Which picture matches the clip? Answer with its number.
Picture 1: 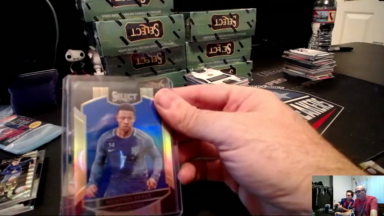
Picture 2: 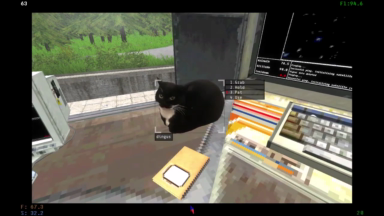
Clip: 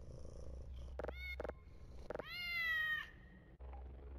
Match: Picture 2